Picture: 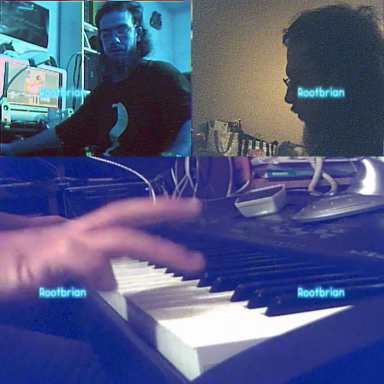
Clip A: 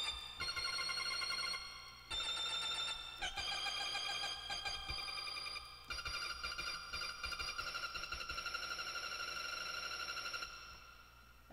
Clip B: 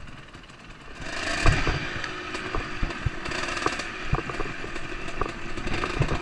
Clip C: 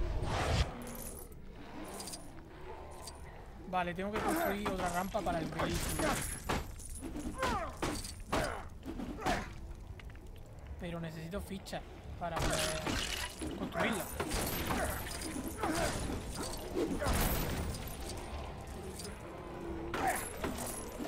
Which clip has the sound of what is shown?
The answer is A